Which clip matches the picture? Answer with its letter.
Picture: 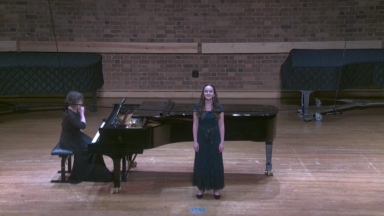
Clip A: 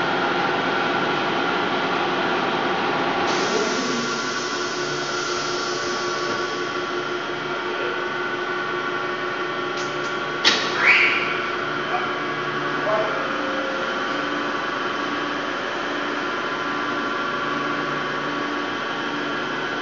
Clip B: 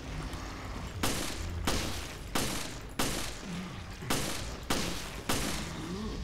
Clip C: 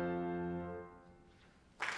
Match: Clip C